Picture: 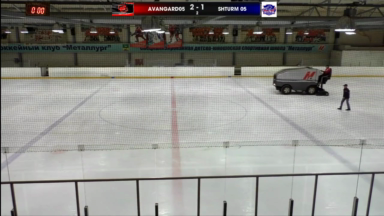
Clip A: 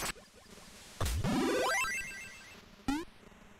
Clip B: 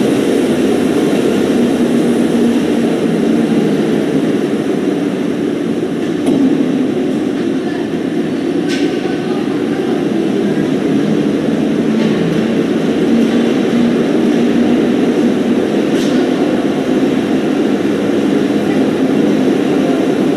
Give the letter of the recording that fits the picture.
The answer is B